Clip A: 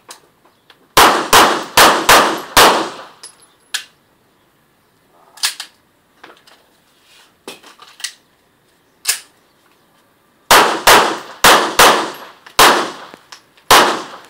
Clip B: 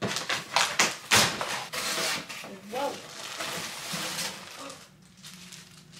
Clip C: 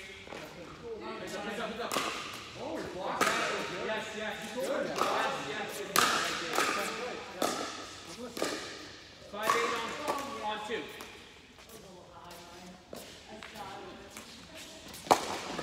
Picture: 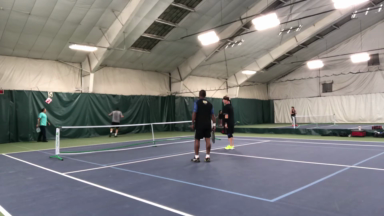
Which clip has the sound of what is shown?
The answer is C